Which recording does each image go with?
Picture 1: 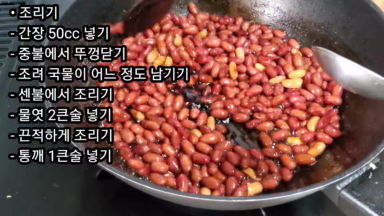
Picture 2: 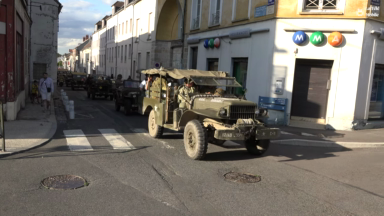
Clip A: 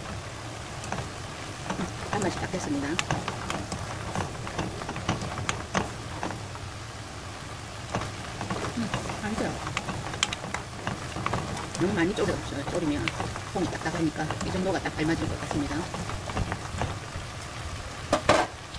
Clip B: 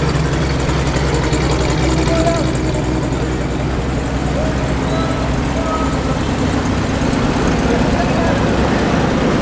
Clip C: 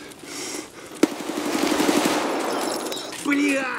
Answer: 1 A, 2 B